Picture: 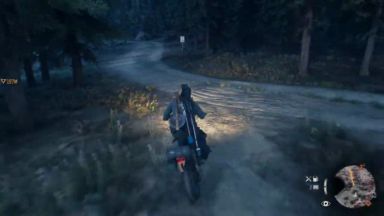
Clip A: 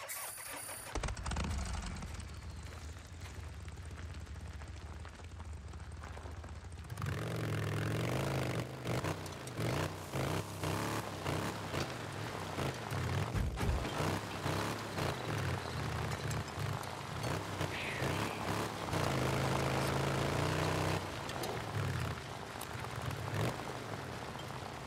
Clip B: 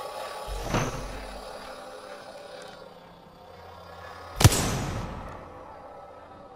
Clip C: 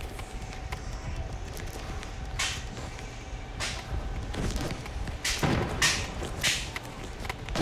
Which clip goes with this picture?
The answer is A